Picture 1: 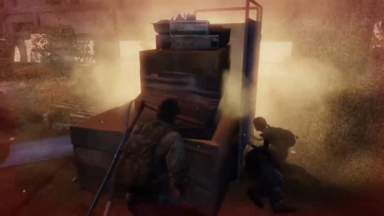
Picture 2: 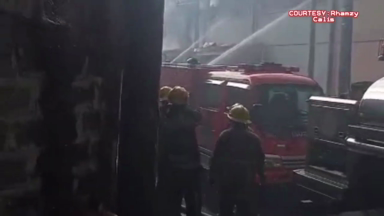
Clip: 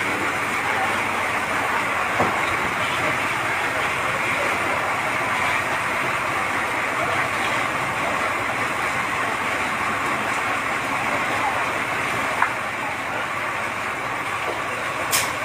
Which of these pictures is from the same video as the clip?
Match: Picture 2